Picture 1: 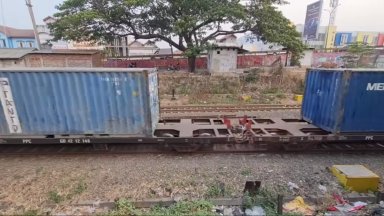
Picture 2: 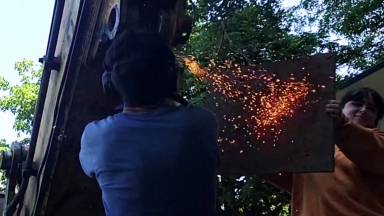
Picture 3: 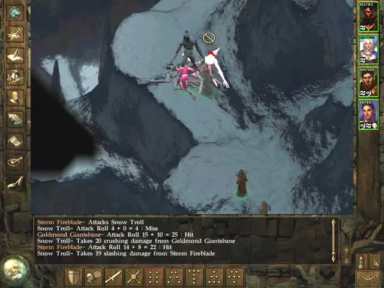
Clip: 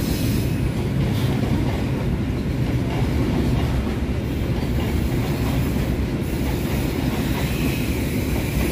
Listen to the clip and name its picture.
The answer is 1